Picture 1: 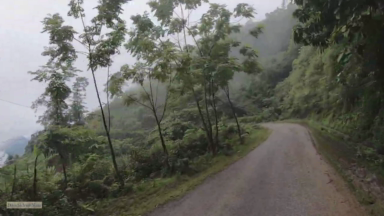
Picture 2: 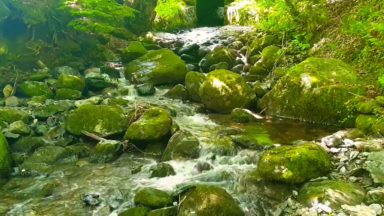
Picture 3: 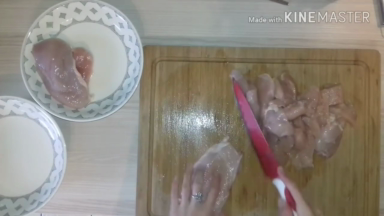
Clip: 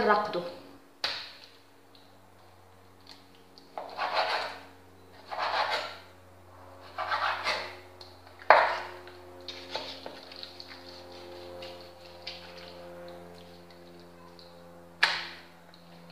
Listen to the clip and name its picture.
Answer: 3